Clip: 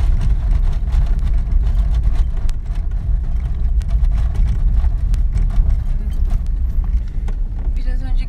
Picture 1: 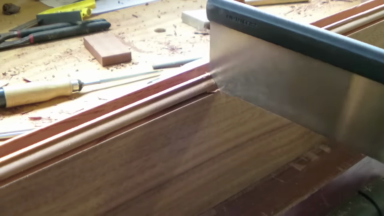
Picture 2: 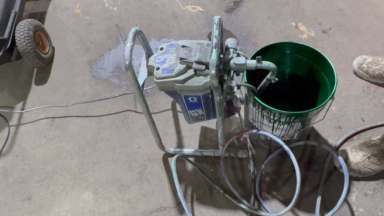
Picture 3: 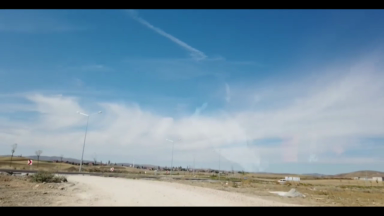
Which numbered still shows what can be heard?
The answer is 3